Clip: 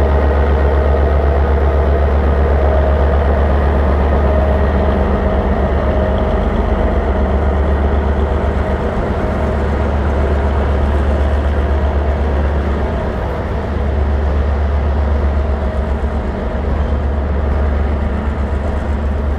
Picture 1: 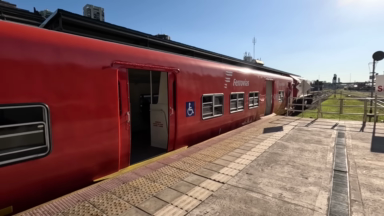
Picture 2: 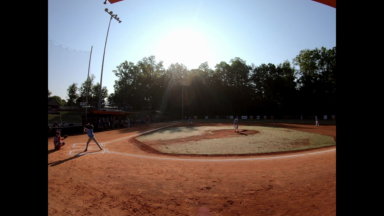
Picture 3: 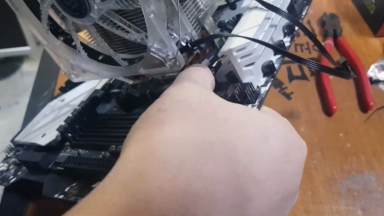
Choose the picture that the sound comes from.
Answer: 1